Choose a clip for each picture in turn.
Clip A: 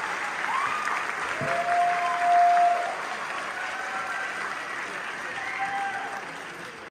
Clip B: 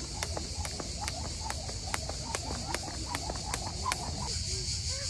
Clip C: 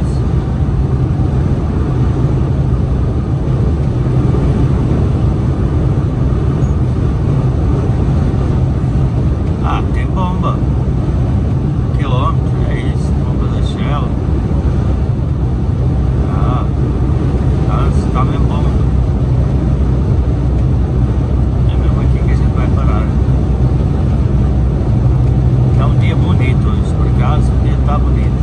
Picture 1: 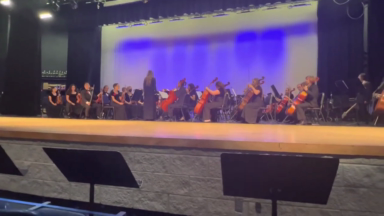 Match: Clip A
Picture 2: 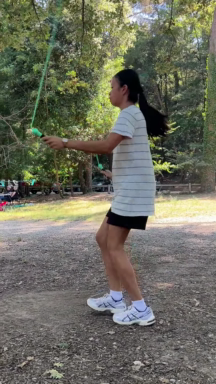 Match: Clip B